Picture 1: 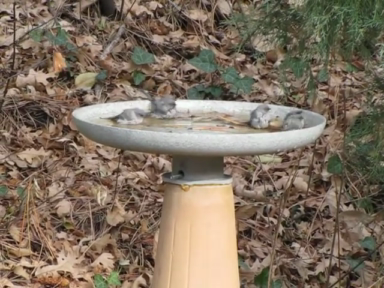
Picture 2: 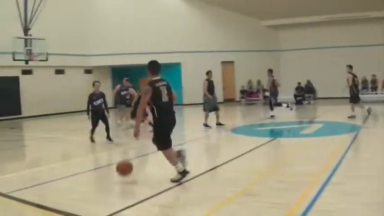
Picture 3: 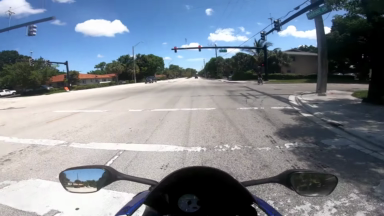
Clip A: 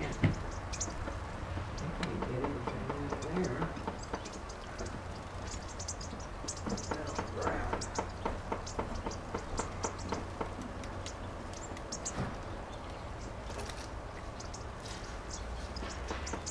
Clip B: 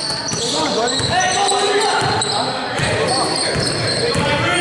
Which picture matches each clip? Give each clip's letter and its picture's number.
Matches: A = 1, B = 2